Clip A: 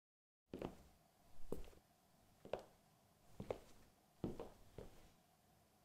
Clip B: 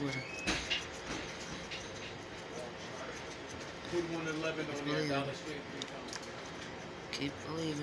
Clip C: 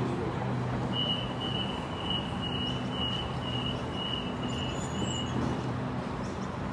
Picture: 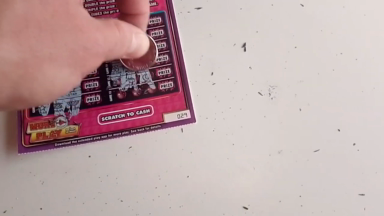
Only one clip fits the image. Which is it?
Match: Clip B